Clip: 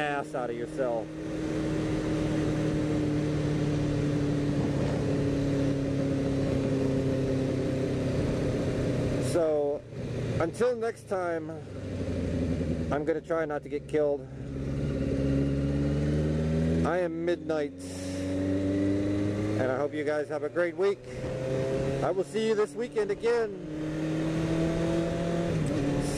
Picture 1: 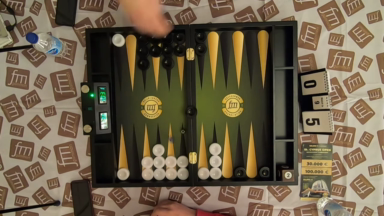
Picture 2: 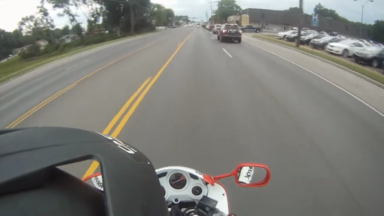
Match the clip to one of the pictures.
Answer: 2